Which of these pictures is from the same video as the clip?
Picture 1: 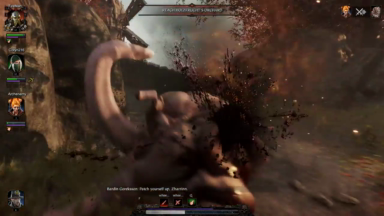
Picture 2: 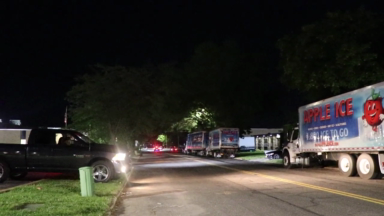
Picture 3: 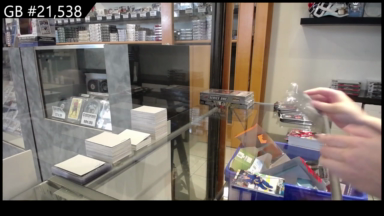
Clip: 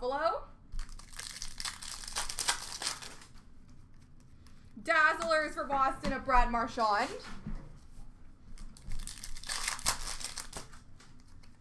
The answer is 3